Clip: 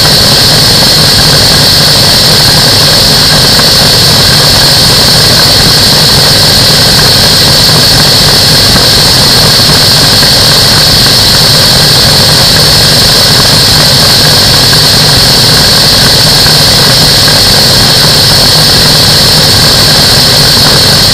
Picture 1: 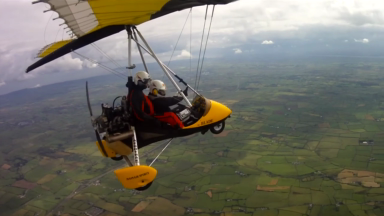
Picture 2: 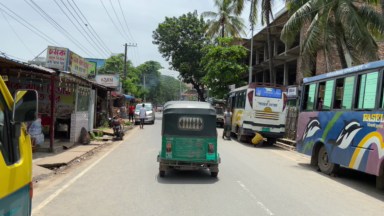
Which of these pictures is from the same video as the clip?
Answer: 1